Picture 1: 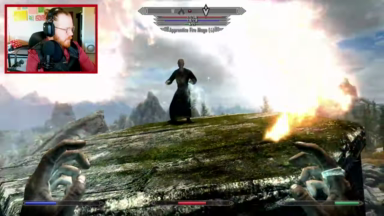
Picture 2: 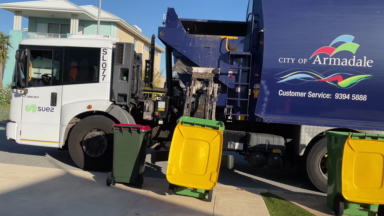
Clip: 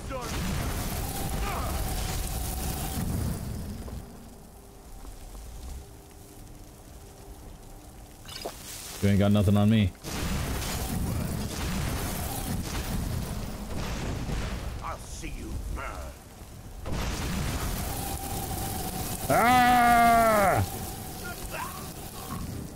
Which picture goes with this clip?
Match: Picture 1